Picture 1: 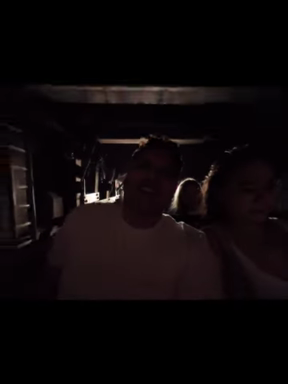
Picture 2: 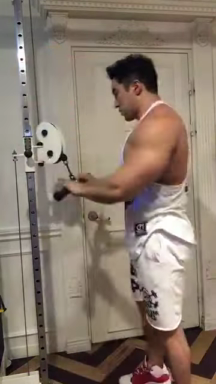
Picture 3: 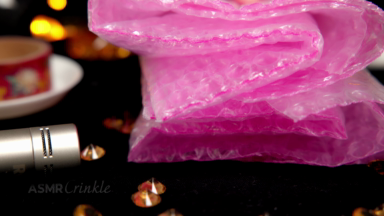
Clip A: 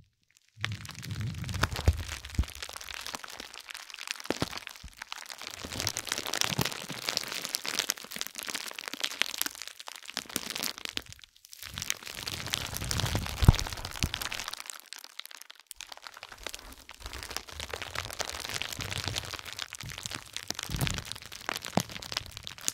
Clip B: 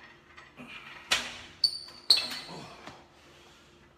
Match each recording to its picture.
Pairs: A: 3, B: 2